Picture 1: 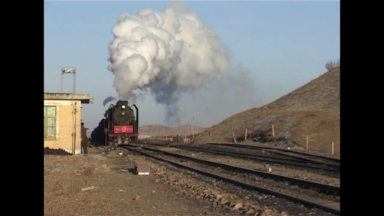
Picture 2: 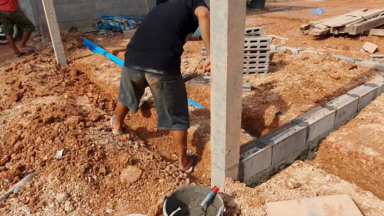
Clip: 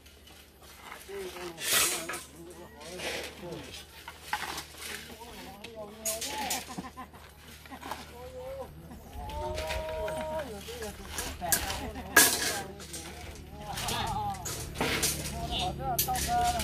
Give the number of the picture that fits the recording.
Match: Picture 2